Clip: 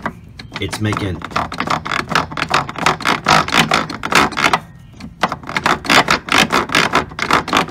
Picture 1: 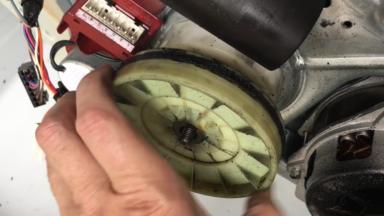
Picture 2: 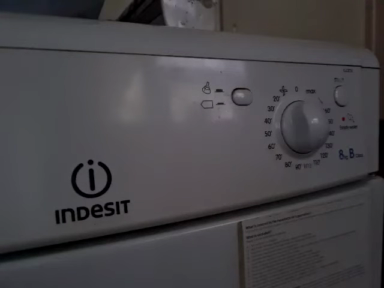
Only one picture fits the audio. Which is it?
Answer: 1